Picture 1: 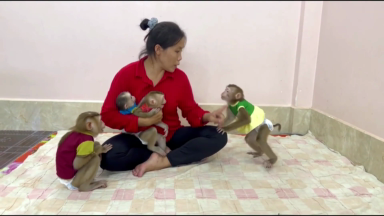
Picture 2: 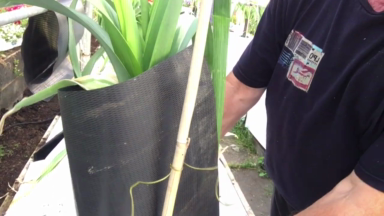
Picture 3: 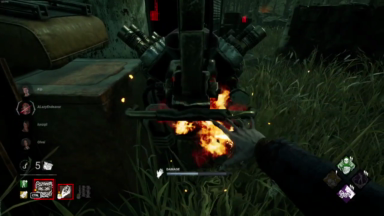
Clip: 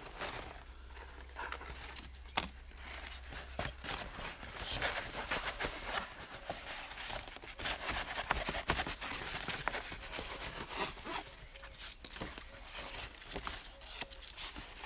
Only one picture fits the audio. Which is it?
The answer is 2